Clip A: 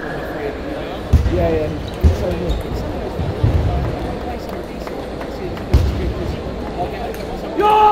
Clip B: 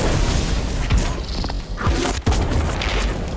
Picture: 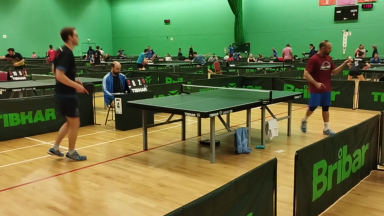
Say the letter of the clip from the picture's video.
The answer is A